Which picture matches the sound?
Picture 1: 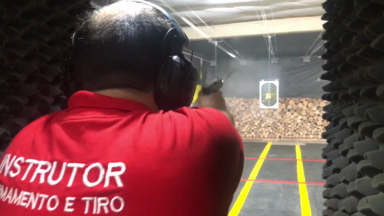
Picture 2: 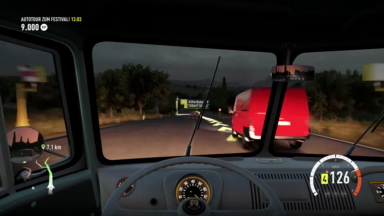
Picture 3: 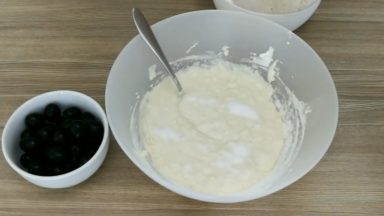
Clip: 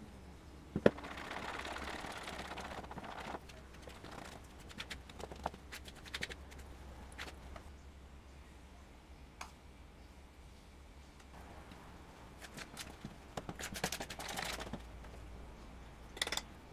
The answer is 3